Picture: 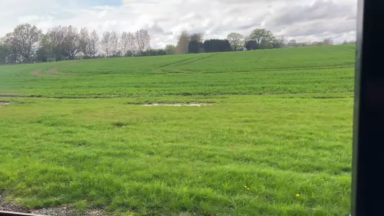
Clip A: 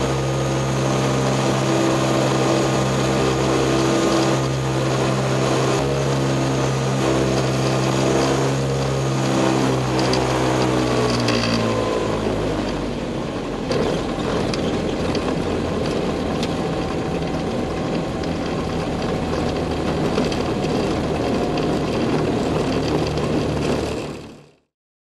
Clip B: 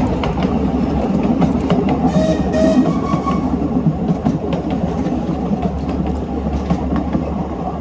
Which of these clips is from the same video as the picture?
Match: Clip B